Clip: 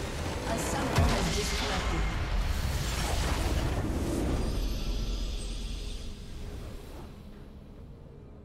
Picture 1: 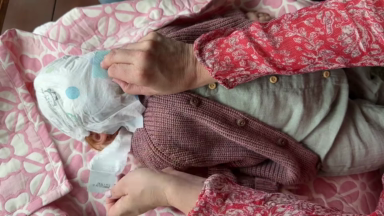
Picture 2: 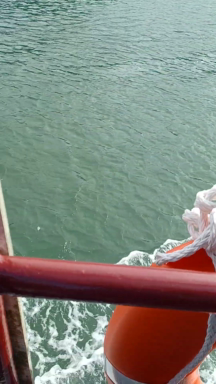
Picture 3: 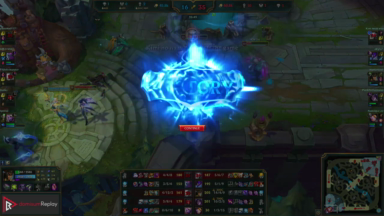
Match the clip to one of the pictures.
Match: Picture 3